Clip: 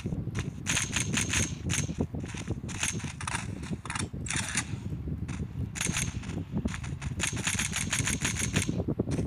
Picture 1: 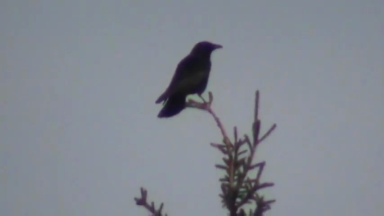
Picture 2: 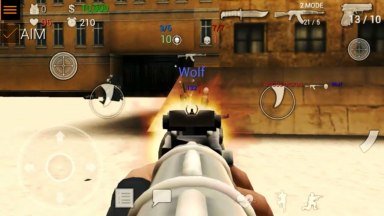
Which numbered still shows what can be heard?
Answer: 2